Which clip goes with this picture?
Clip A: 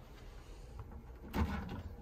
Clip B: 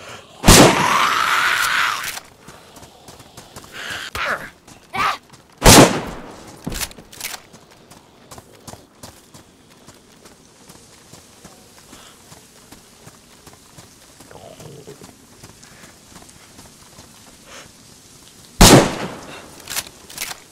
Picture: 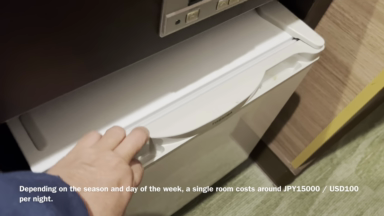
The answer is A